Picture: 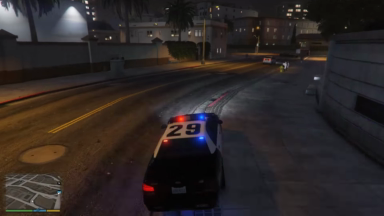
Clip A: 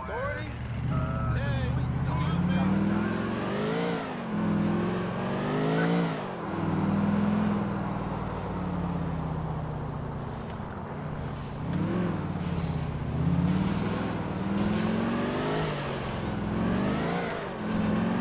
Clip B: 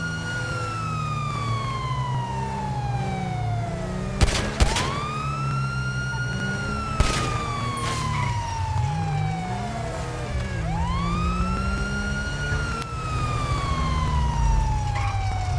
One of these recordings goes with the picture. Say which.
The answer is B